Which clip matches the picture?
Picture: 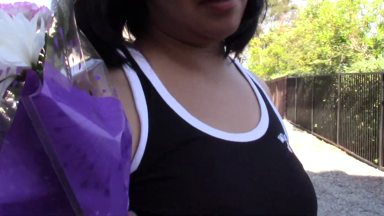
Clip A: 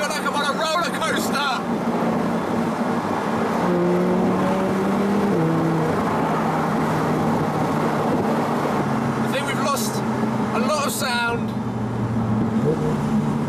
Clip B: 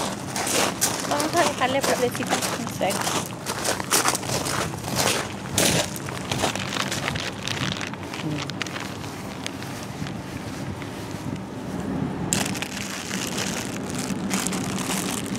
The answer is B